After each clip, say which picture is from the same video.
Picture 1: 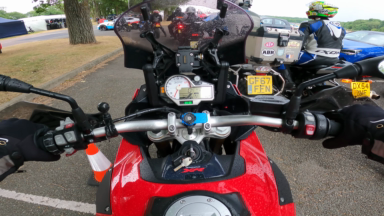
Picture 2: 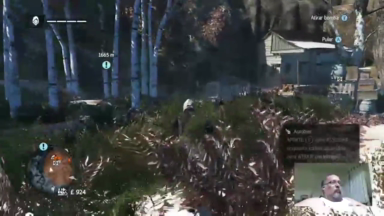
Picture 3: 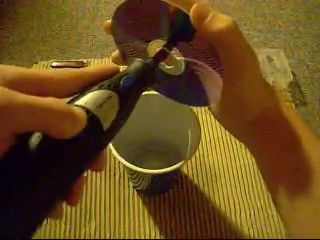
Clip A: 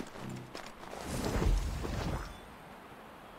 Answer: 2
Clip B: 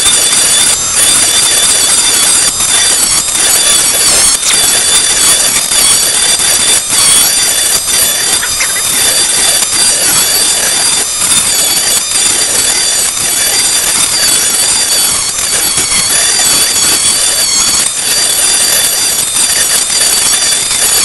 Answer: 3